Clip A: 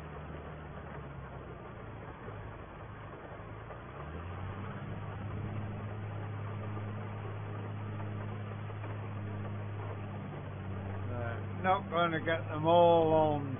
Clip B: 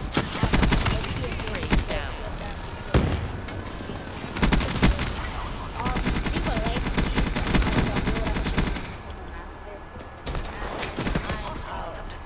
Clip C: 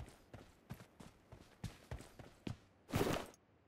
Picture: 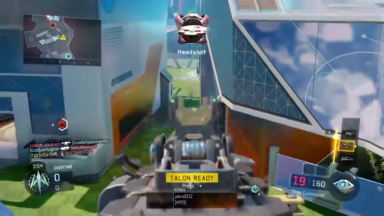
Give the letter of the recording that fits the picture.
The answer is B